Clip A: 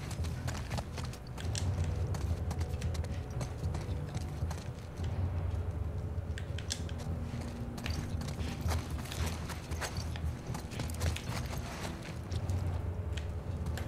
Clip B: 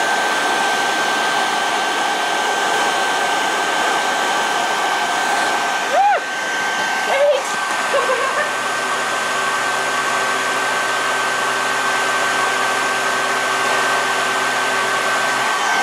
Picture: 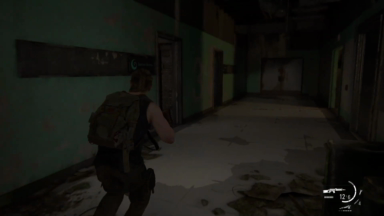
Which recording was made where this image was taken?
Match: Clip A